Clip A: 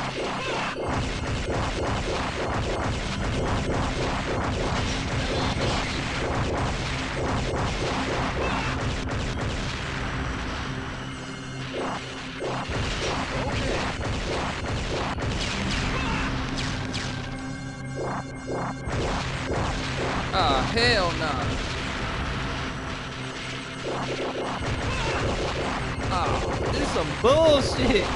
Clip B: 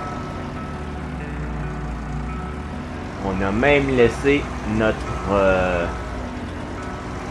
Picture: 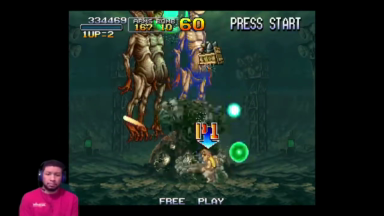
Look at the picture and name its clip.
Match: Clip A